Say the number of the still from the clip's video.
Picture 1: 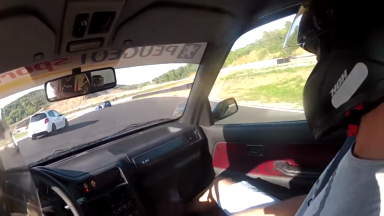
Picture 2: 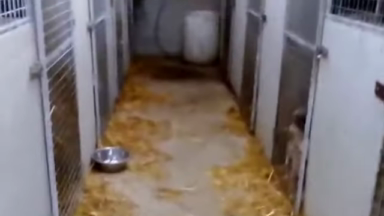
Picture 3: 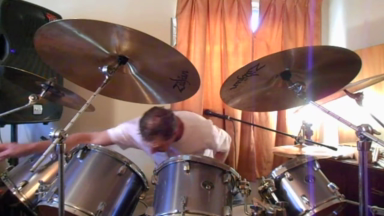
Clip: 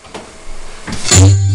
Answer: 3